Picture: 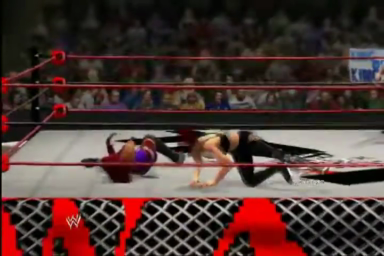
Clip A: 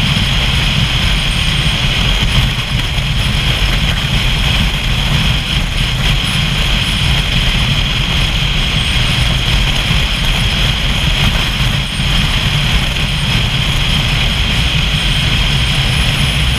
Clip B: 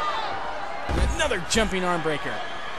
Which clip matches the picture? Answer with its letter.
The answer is B